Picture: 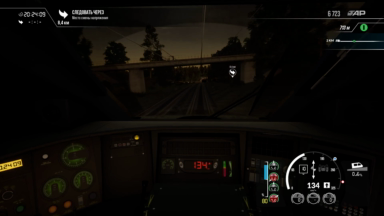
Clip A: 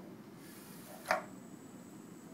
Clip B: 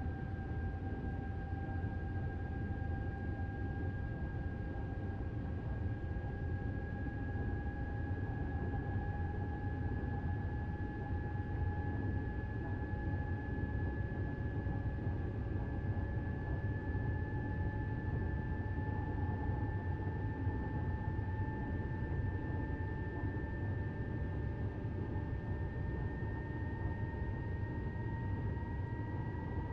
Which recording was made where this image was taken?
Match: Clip B